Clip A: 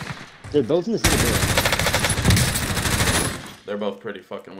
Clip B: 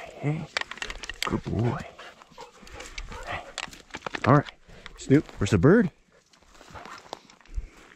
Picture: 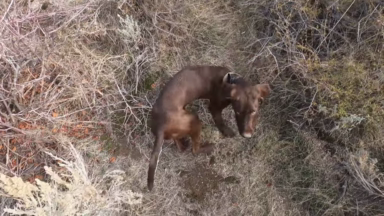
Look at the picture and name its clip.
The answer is B